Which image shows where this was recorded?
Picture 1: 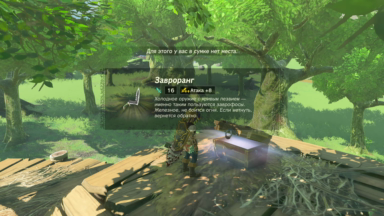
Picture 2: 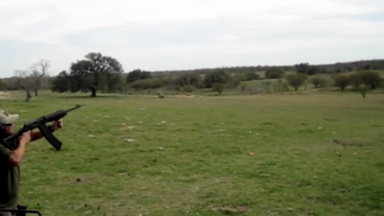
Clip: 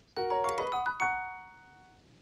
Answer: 1